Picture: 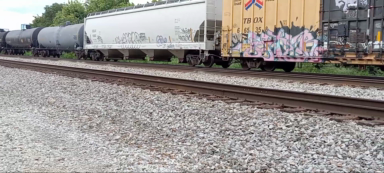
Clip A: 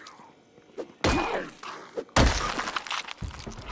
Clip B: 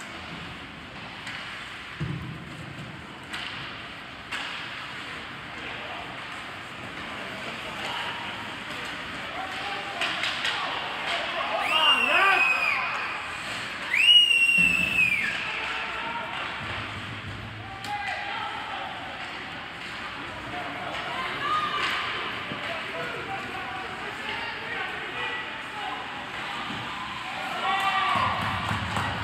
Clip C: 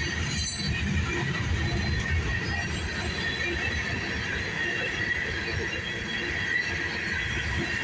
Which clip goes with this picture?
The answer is C